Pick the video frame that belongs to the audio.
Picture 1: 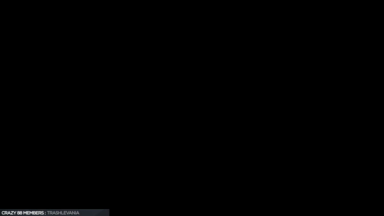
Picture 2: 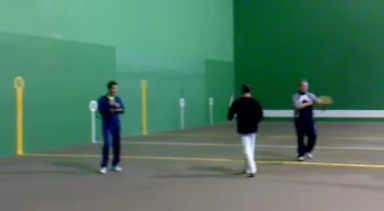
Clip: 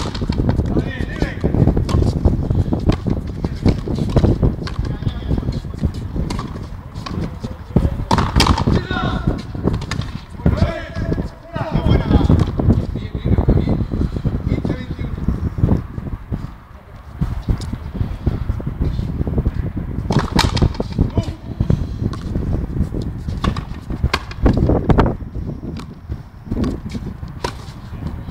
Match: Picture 2